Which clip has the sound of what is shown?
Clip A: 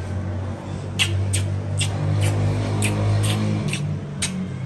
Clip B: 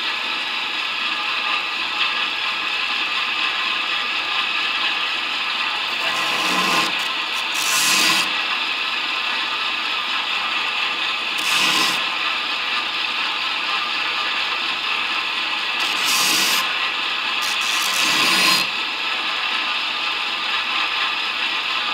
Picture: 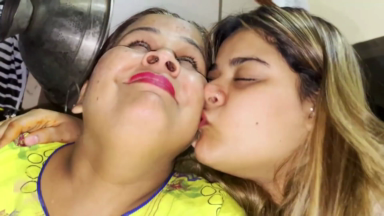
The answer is A